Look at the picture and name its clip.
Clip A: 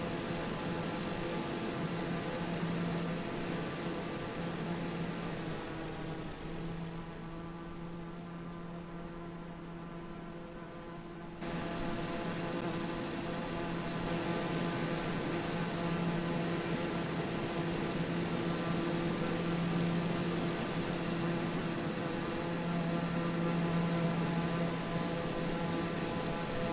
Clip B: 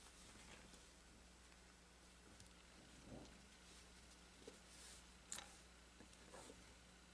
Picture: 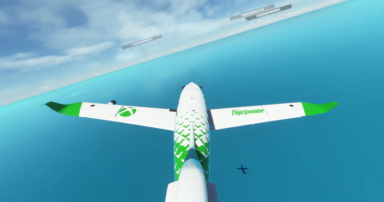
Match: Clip A